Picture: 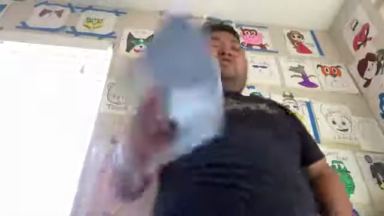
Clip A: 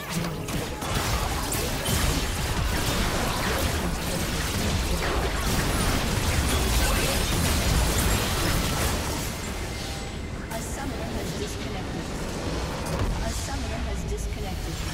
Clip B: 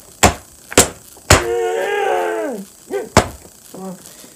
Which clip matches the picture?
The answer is B